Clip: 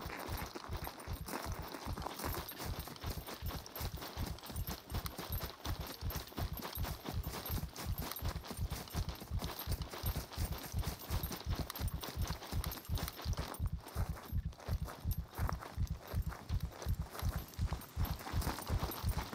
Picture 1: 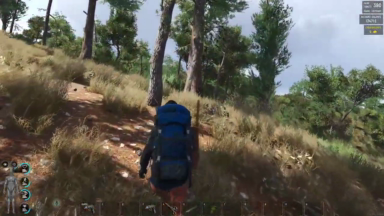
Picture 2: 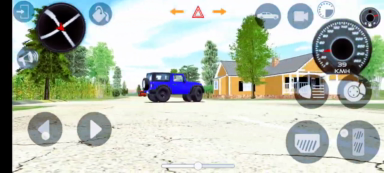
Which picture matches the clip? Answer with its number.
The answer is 1